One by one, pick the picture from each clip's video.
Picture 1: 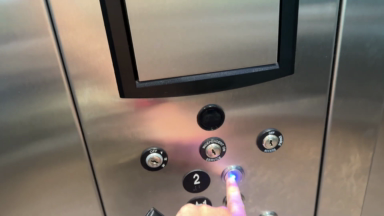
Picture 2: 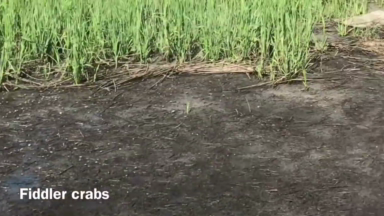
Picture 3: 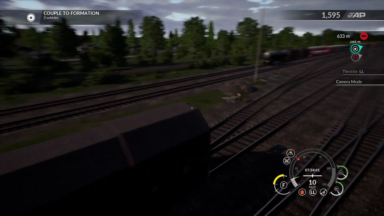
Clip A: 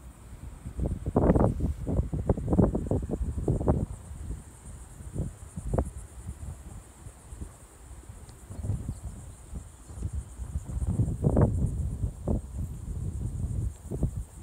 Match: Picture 2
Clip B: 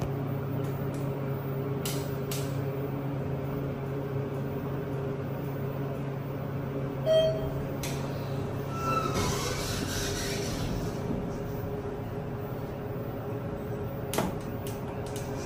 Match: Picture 1